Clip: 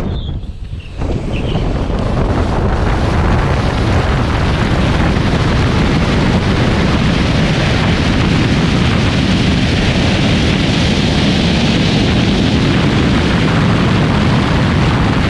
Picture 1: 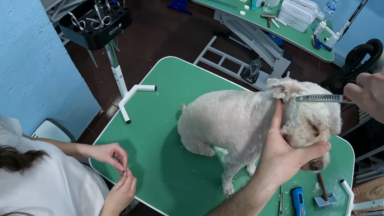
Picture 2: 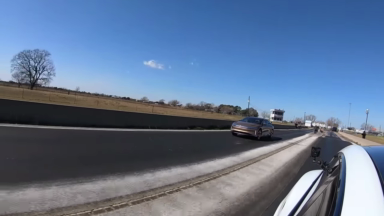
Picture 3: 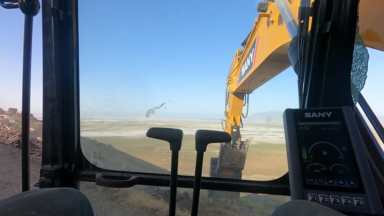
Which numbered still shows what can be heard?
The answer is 2